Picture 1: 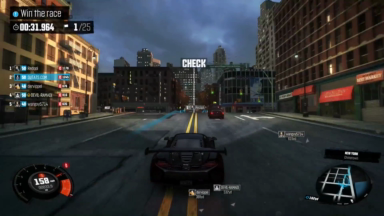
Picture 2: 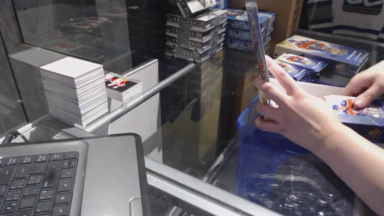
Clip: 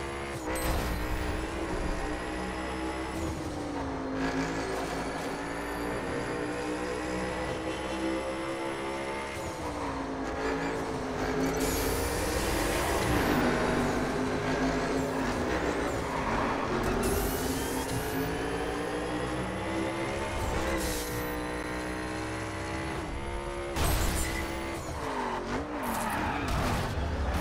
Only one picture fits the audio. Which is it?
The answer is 1